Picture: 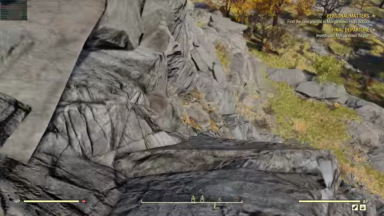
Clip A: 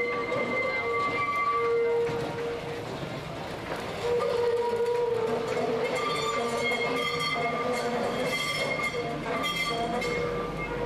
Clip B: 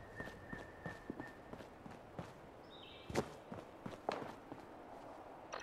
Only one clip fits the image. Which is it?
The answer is B